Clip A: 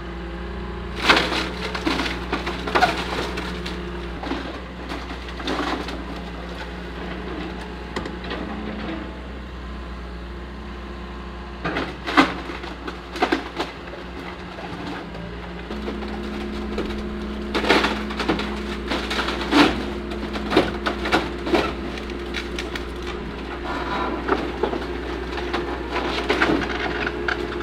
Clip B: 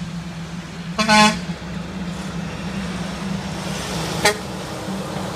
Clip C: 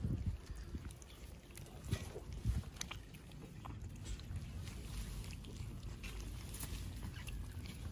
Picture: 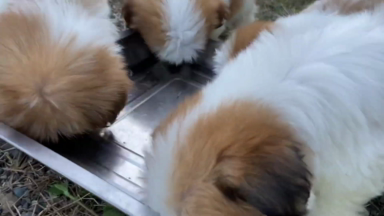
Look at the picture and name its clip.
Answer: C